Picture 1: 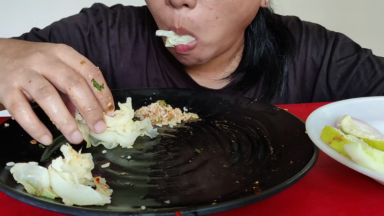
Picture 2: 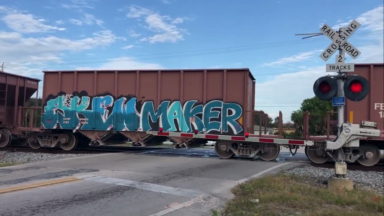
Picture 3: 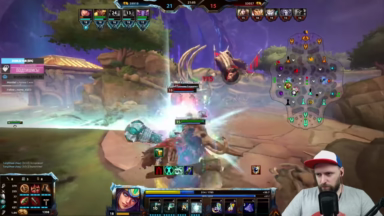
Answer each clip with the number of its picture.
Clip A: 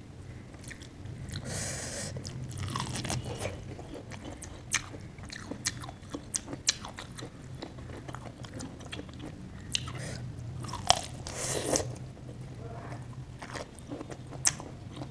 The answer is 1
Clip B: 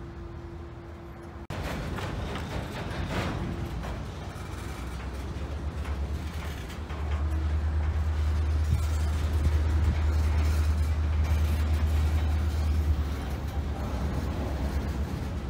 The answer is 2